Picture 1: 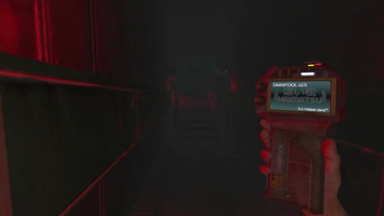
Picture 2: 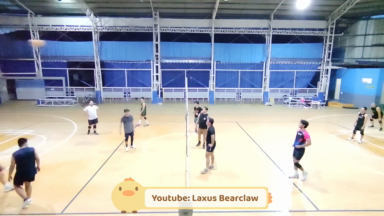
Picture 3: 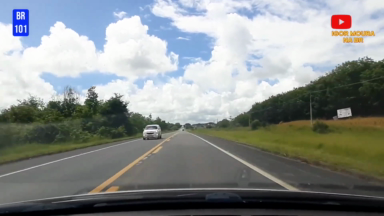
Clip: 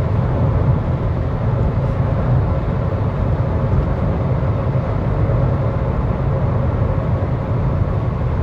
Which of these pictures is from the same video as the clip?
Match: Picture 3